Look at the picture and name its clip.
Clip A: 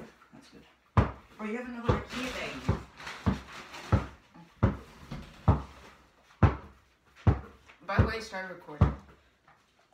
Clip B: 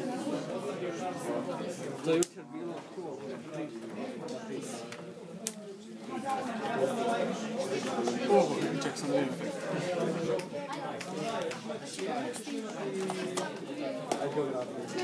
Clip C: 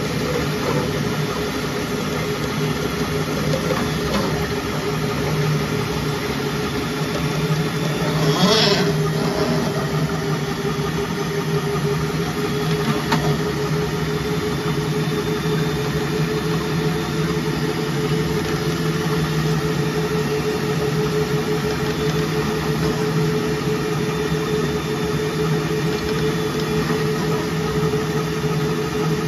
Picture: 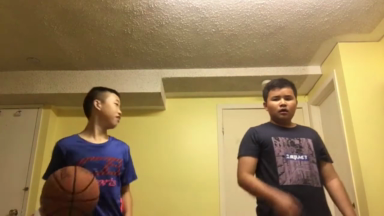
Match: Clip A